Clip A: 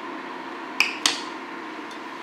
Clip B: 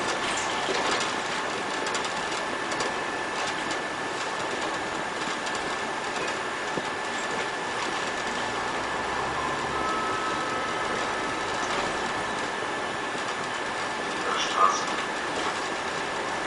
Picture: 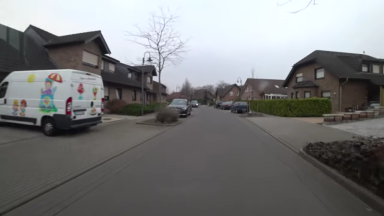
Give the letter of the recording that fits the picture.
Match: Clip B